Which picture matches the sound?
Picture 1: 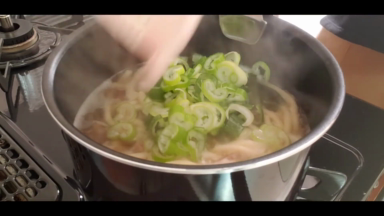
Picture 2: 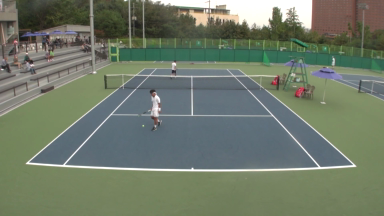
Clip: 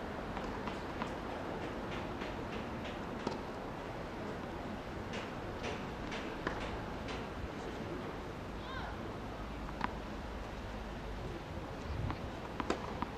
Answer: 2